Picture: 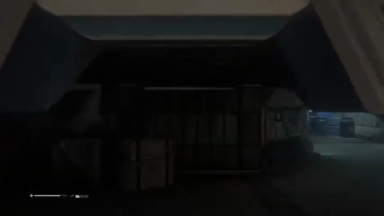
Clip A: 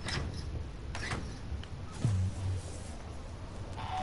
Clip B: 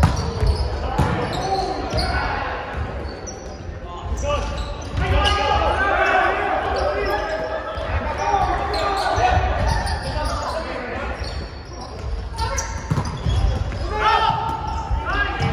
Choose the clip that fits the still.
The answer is A